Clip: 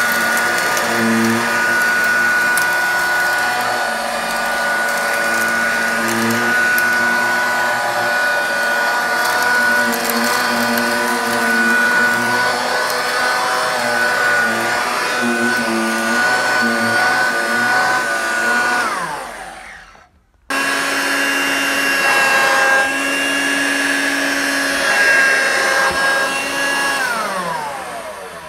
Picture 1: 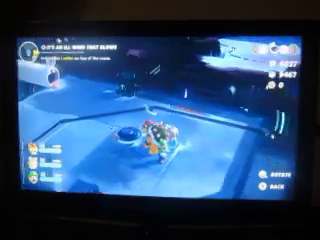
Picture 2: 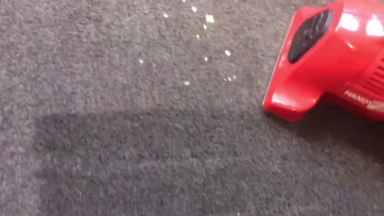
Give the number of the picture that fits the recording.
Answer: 2